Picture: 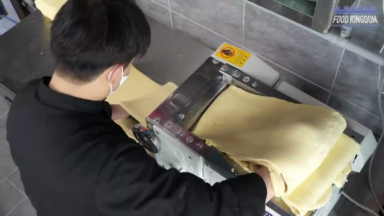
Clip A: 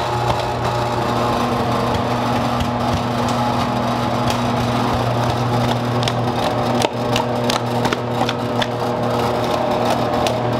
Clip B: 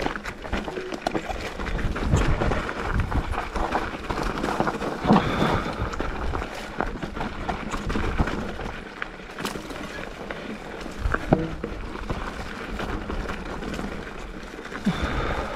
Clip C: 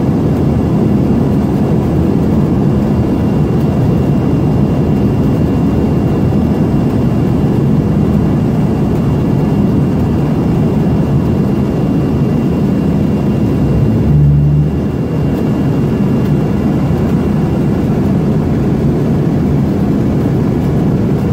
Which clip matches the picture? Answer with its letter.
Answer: A